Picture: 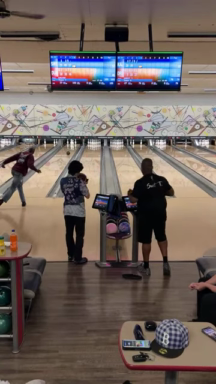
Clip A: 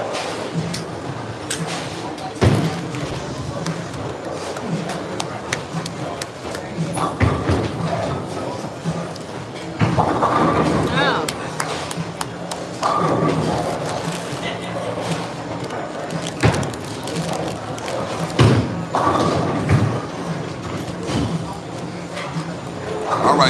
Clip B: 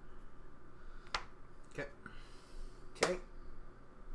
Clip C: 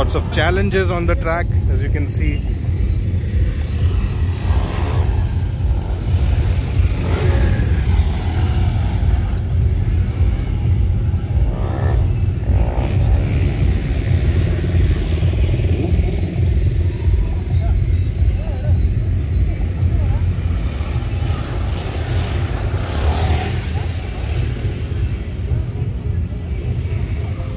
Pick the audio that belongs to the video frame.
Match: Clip A